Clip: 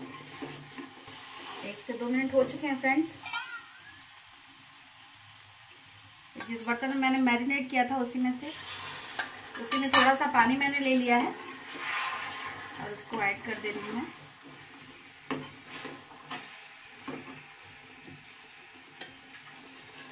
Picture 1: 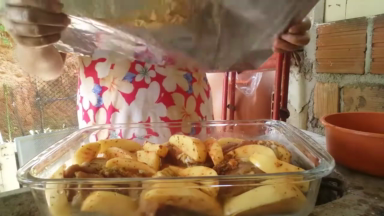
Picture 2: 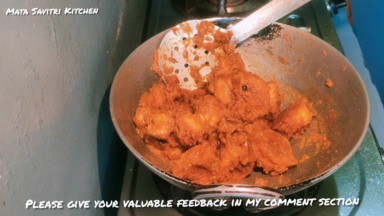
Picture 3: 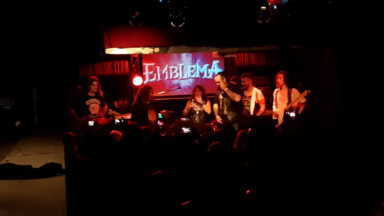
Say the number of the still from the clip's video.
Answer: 2